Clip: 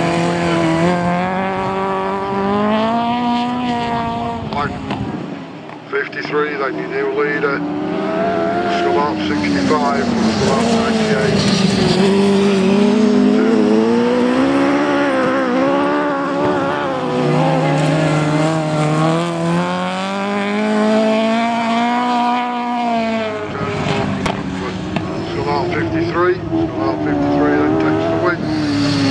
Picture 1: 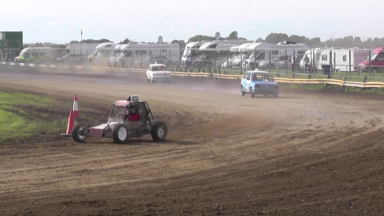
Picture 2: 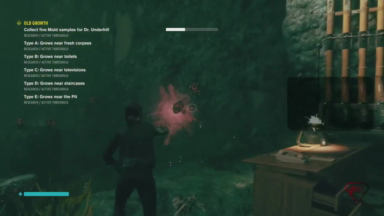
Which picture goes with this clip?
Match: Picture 1